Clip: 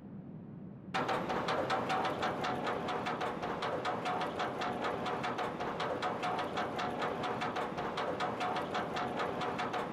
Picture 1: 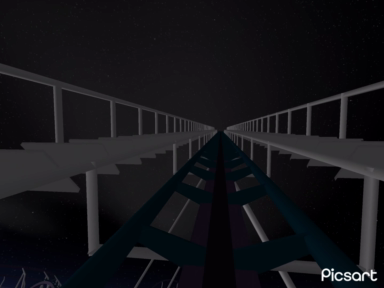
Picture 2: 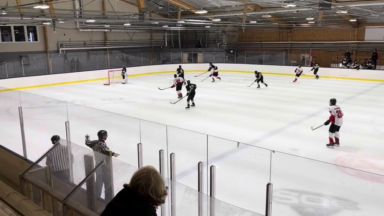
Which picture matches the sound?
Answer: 1